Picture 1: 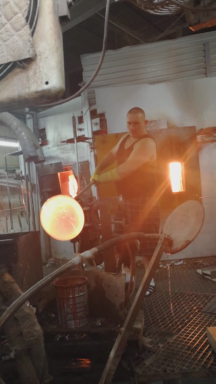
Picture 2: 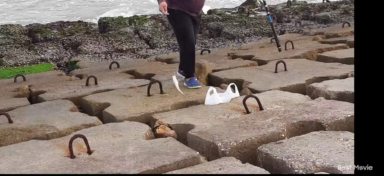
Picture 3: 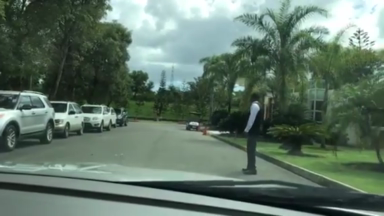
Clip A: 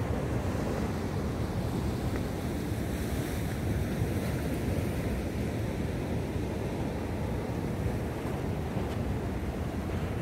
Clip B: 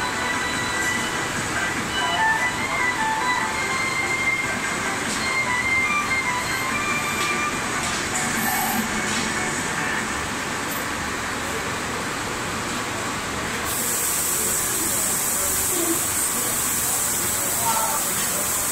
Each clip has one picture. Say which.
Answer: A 2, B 1